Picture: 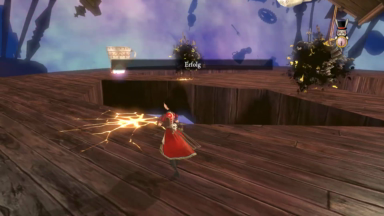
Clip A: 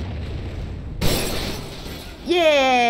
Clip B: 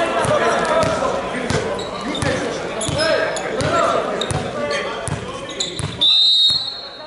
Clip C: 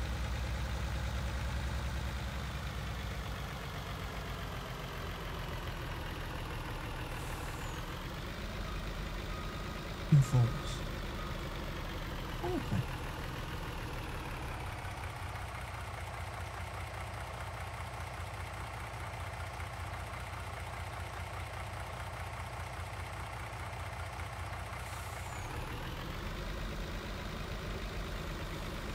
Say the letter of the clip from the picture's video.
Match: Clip A